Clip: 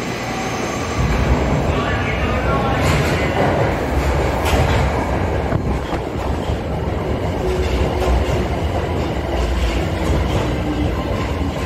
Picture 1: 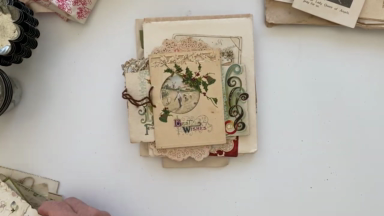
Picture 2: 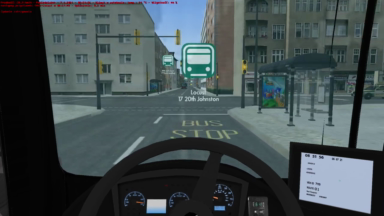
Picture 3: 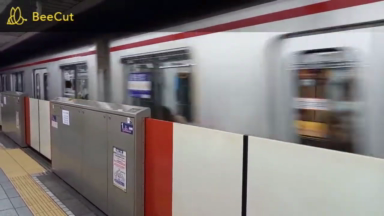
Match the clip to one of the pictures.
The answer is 3